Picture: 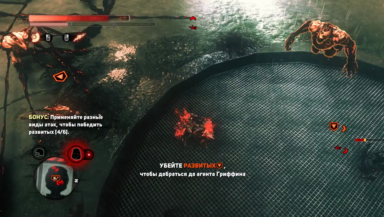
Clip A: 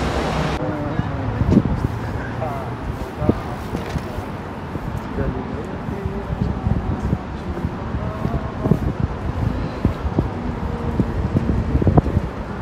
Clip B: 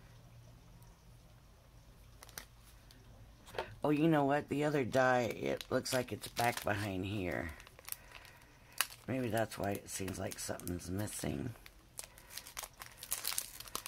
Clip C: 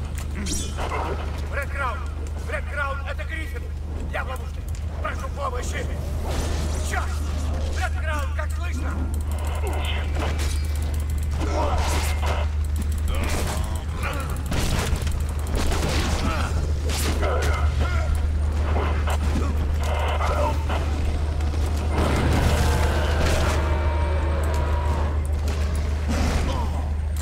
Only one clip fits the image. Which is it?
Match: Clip C